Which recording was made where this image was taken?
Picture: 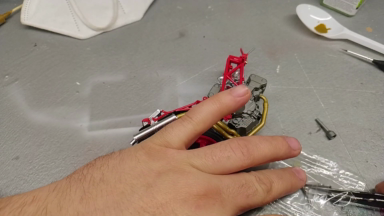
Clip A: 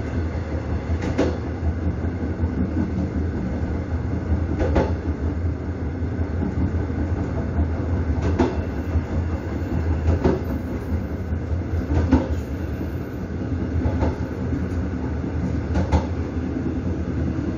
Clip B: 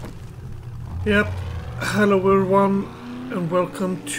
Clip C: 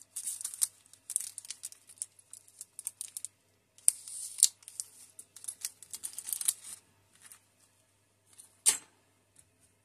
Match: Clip C